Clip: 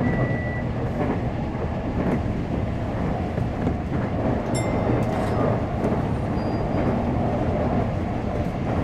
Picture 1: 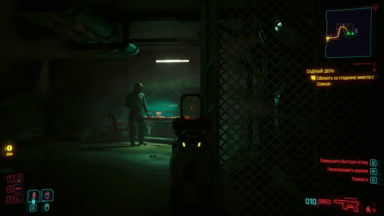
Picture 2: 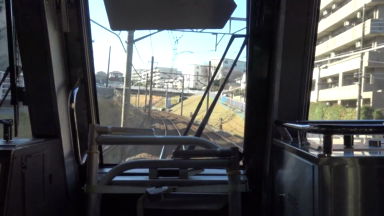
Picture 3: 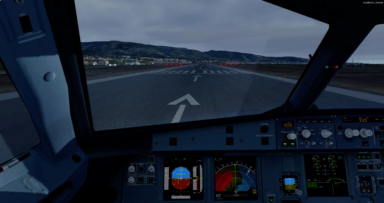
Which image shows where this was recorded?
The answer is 2